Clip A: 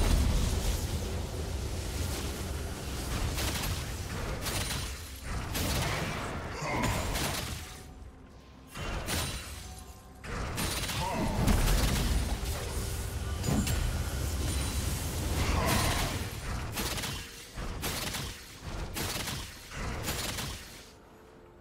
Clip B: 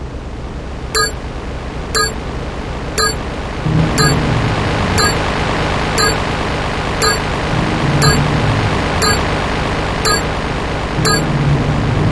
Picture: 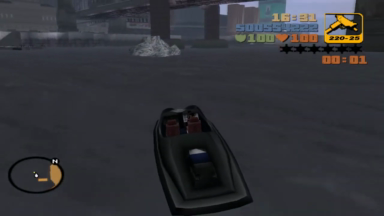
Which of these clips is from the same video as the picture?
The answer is B